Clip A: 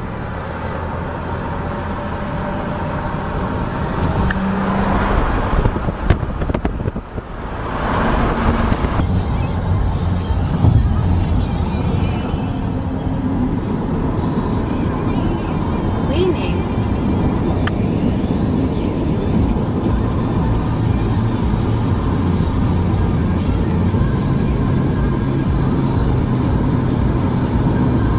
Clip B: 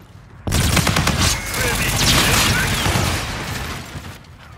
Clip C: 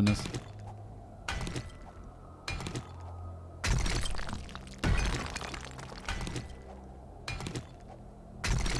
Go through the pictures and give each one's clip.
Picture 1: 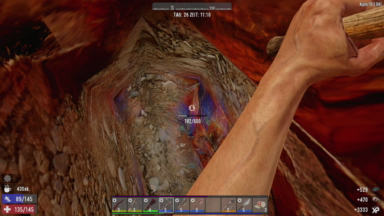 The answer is C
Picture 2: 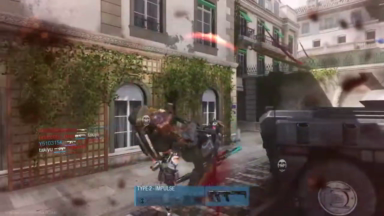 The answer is B